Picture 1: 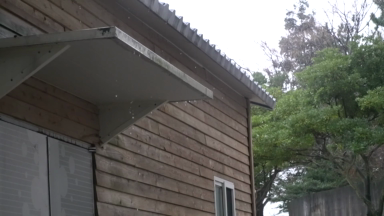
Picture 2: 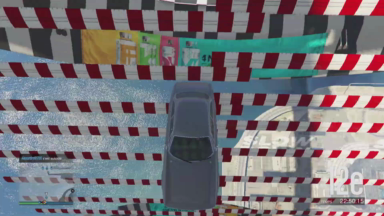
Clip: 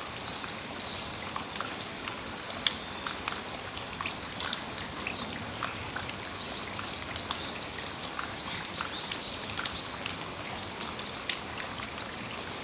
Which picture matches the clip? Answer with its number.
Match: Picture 1